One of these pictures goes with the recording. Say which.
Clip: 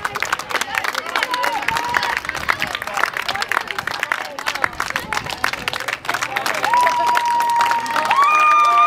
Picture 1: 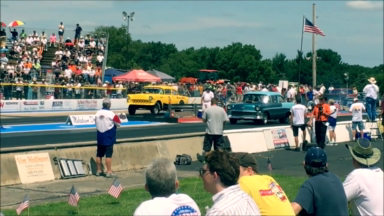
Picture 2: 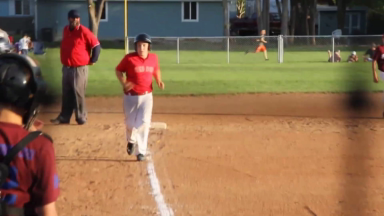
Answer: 2